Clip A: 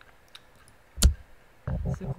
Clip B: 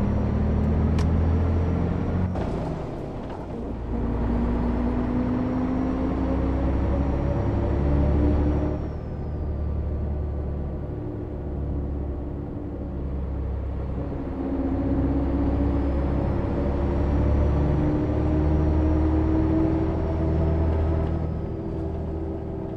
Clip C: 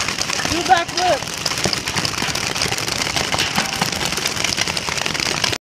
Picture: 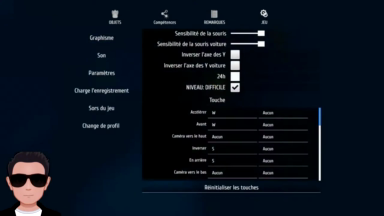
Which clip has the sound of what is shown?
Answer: A